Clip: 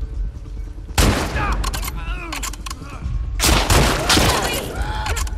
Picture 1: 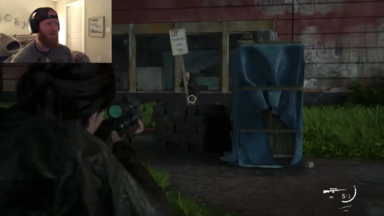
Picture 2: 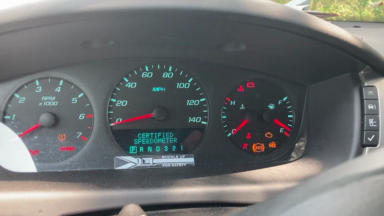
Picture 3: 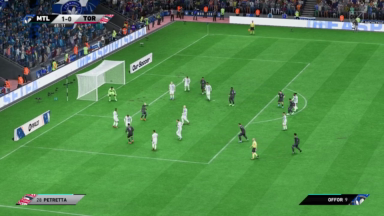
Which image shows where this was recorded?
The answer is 1